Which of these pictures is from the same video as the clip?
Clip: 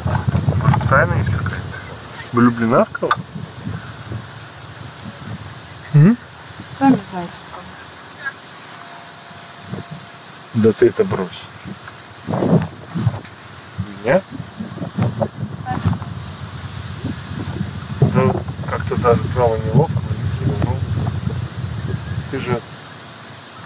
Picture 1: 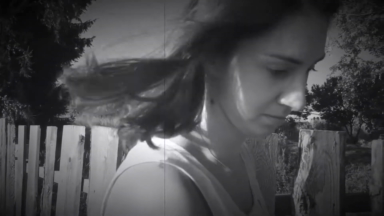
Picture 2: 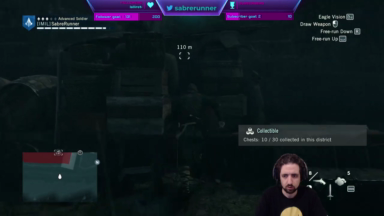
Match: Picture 1